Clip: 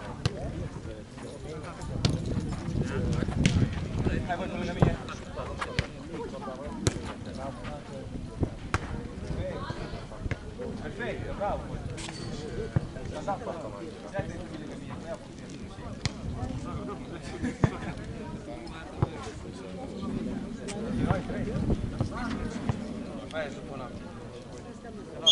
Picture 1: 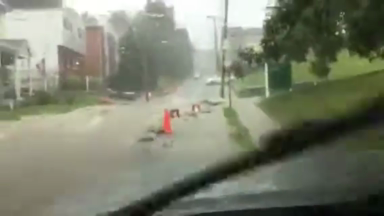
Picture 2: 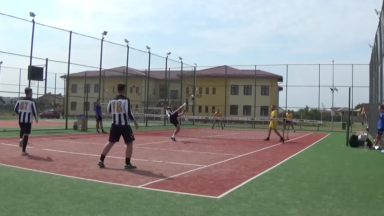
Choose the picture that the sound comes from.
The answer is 2